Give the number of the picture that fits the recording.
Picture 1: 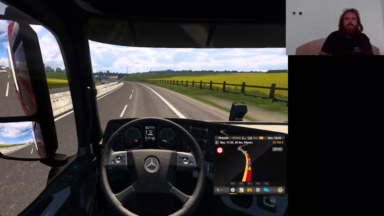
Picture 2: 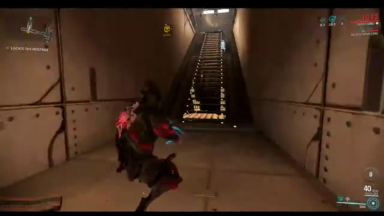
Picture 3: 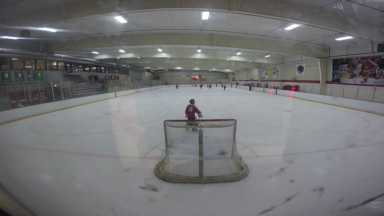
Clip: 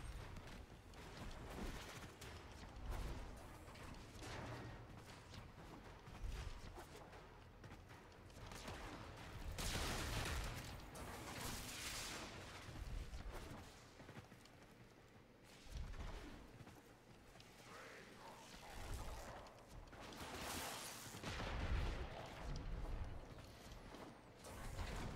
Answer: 2